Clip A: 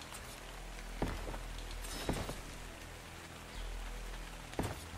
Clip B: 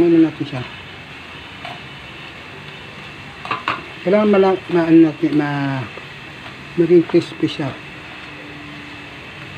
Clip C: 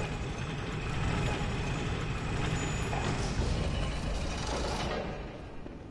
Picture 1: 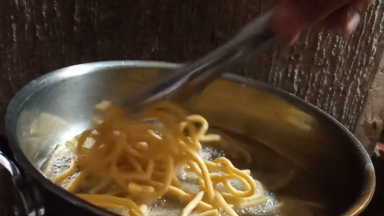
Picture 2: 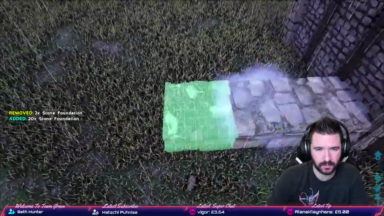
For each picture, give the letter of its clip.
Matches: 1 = B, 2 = A